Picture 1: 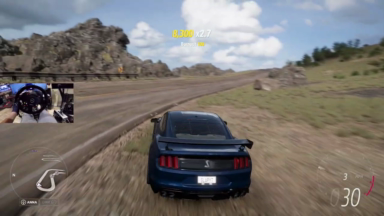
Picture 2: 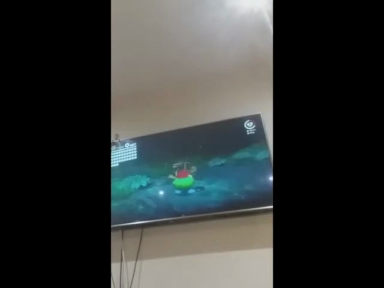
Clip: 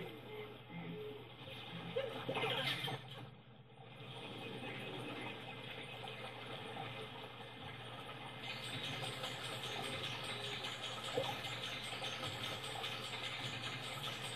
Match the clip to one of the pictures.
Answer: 2